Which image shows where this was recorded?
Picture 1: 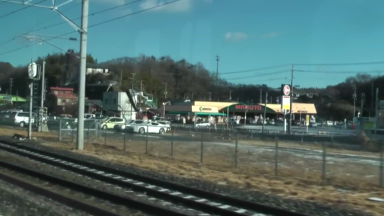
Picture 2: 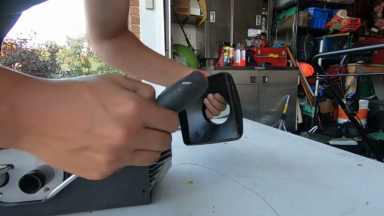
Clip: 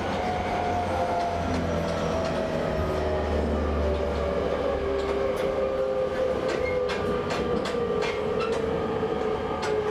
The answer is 1